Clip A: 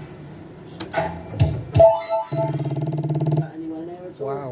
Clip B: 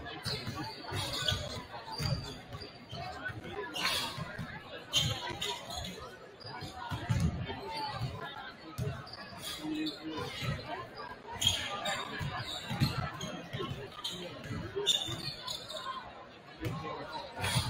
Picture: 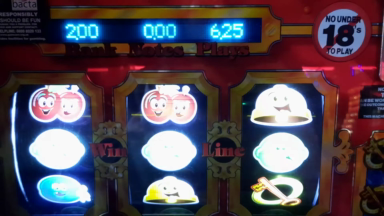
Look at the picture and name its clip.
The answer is A